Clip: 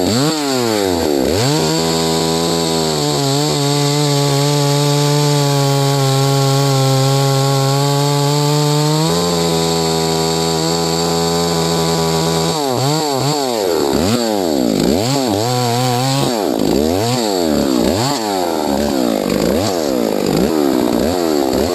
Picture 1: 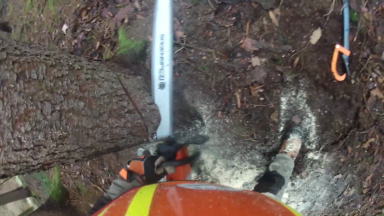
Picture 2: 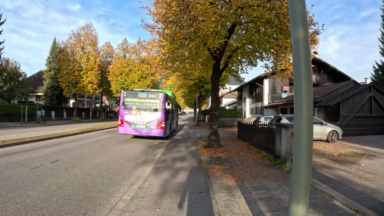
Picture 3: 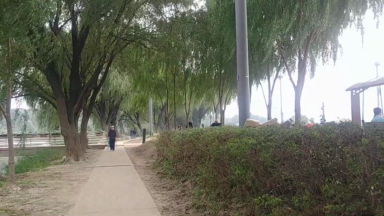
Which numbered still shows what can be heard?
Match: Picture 1